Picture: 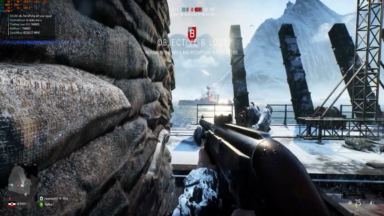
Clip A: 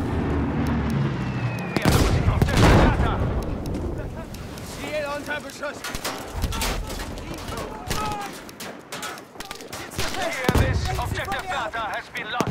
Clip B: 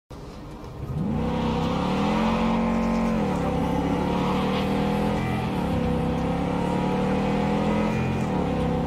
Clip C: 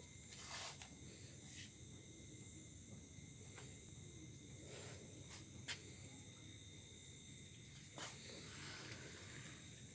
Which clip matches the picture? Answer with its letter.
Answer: A